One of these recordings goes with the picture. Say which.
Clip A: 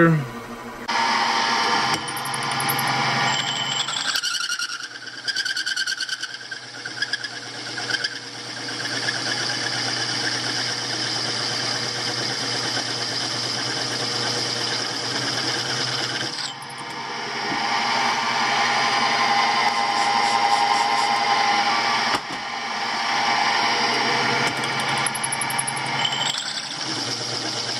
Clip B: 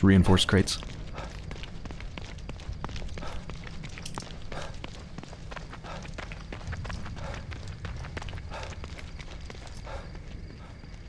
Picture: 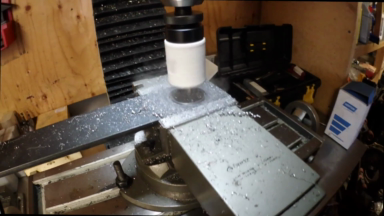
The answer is A